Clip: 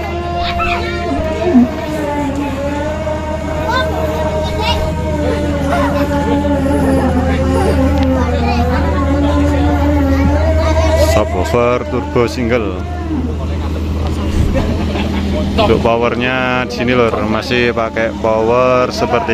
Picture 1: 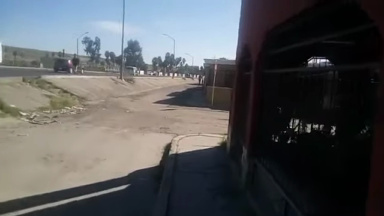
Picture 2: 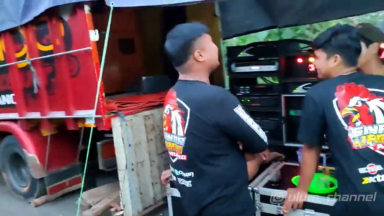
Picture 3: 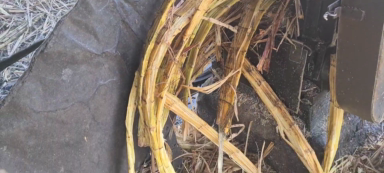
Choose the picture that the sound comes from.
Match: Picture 2